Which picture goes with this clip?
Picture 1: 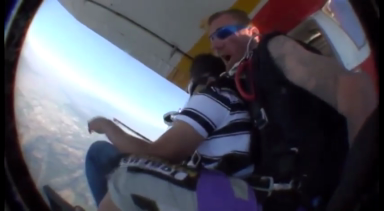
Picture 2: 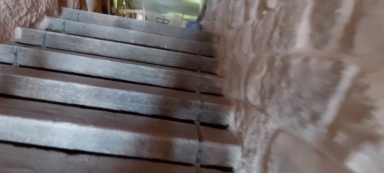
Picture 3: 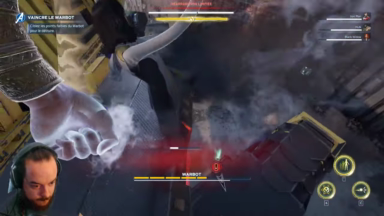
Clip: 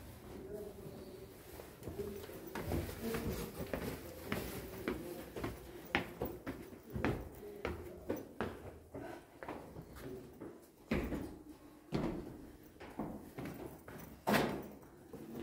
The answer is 2